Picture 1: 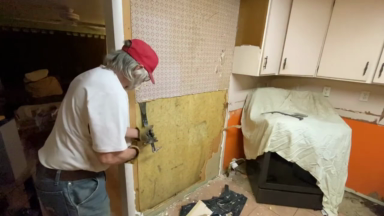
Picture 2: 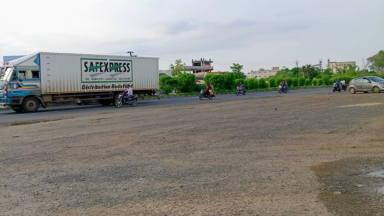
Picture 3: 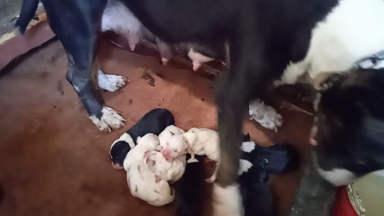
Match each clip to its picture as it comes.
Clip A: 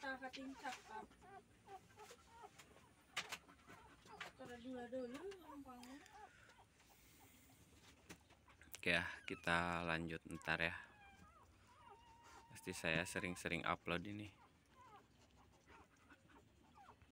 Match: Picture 3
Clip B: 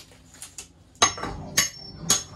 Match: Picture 1